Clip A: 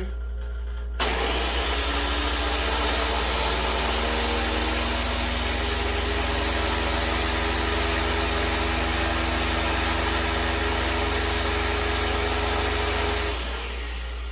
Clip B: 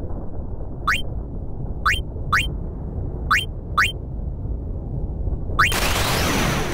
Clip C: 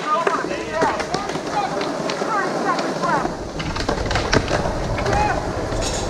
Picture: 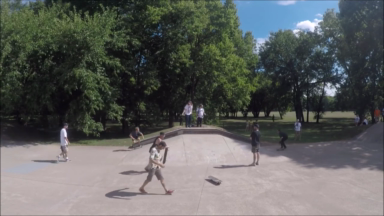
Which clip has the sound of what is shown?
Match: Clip C